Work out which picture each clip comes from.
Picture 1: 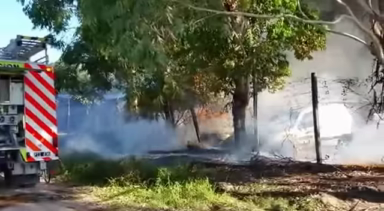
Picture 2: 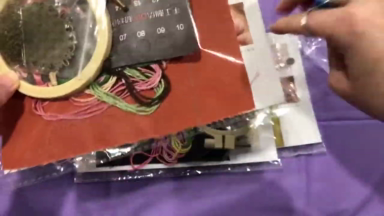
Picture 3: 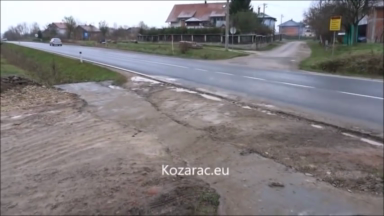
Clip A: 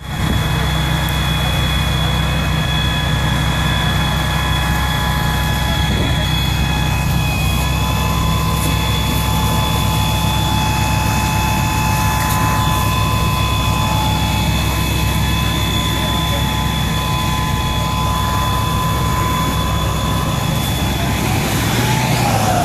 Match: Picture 1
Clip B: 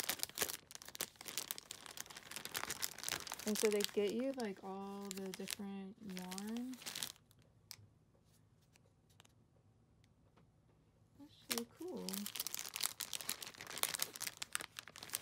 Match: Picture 2